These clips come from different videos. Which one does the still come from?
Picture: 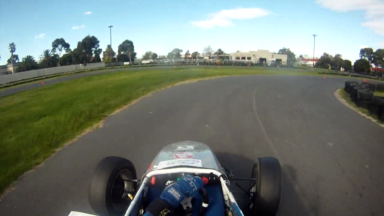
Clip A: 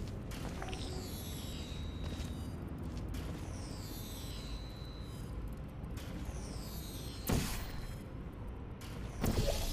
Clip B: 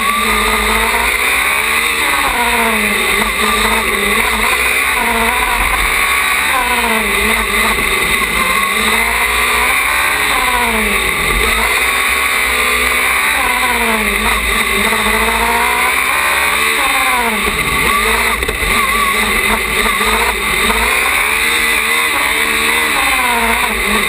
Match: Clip B